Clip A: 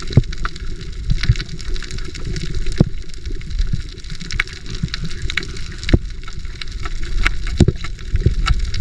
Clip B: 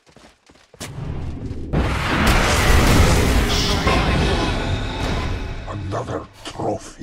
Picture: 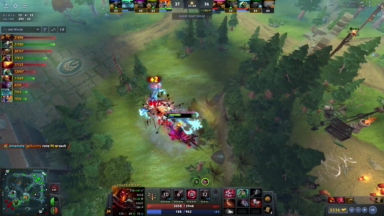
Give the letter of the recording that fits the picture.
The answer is B